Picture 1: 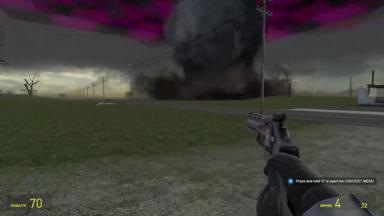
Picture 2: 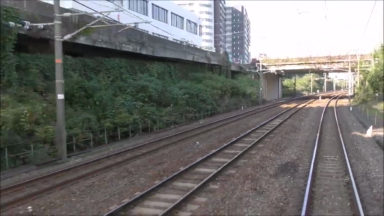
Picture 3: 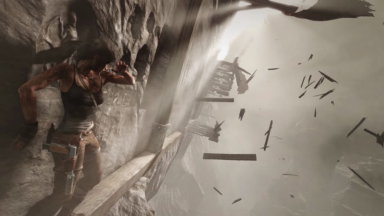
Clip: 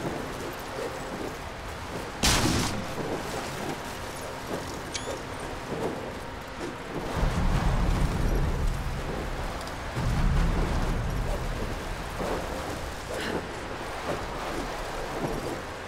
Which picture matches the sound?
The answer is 3